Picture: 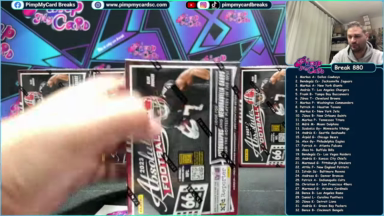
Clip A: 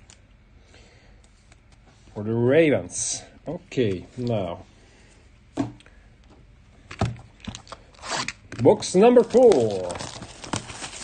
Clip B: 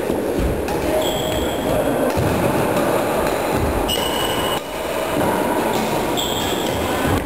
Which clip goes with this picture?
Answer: A